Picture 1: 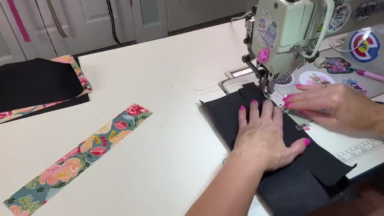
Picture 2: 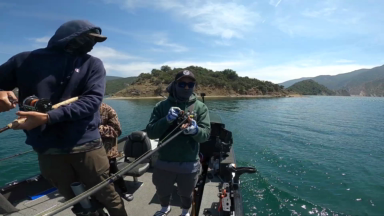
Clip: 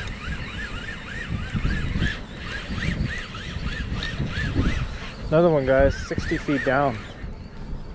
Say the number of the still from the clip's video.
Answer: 2